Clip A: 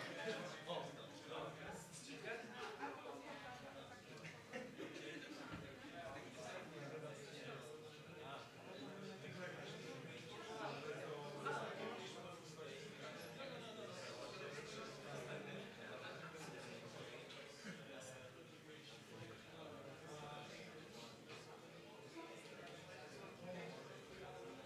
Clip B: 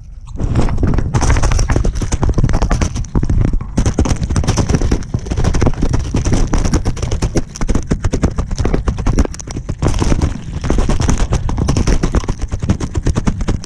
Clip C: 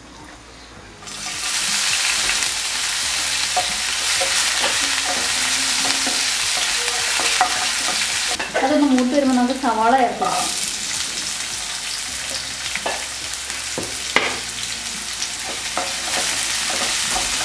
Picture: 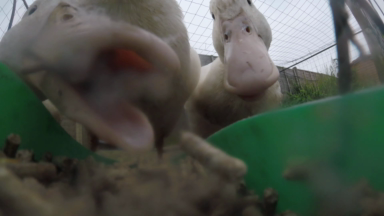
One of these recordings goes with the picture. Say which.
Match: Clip B